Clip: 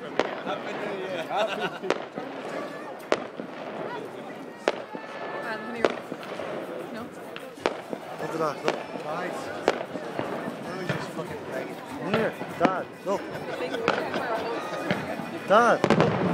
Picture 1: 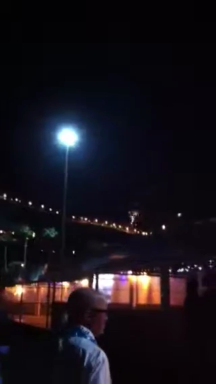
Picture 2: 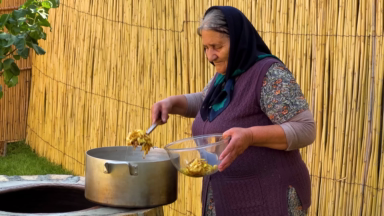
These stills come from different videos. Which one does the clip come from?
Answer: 1